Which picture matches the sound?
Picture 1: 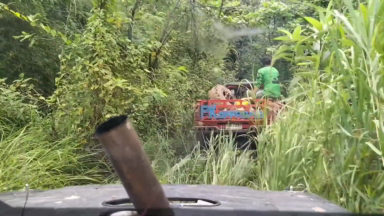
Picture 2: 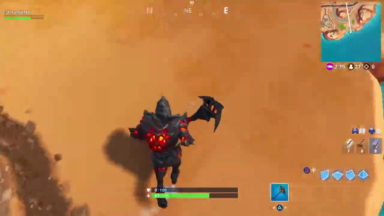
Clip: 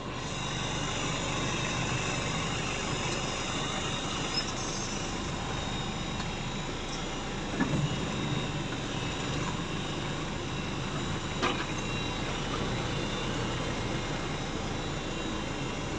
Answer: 1